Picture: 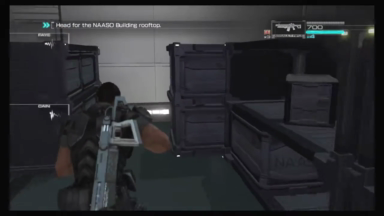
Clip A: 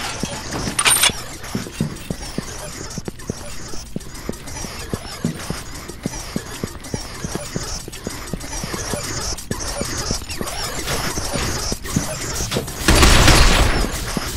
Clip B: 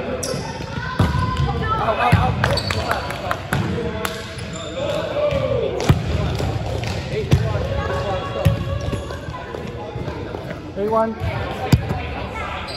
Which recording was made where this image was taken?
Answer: A